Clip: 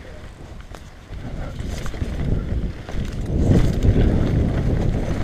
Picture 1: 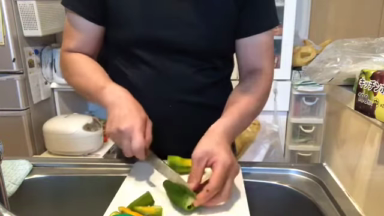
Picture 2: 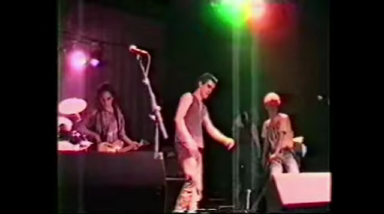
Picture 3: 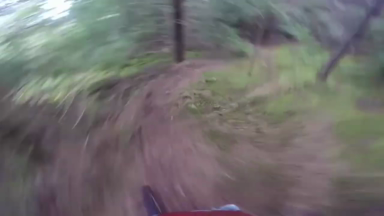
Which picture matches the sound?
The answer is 3